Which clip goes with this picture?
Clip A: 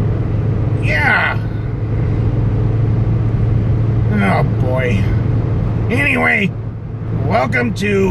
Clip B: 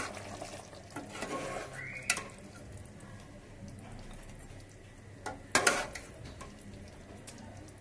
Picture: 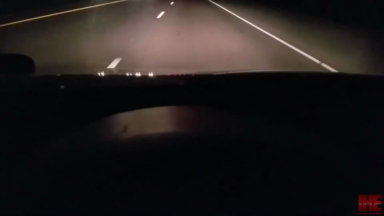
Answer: A